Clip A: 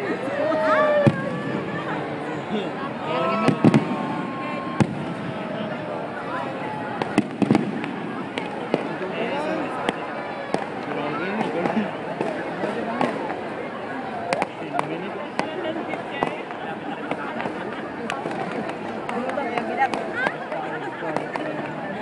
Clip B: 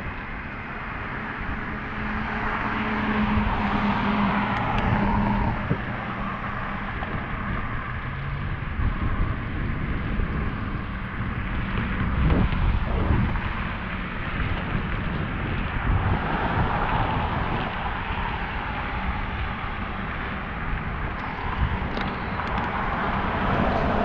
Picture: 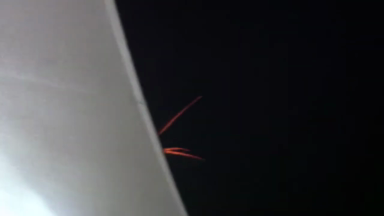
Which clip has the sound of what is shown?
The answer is A